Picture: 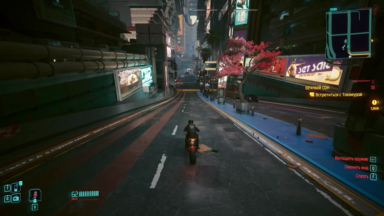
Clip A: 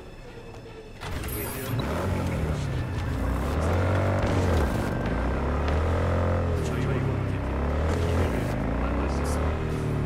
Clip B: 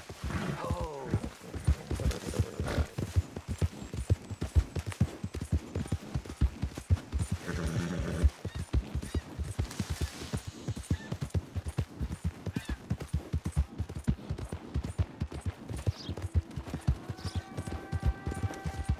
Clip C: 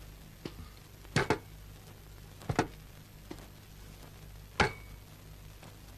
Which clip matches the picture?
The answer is A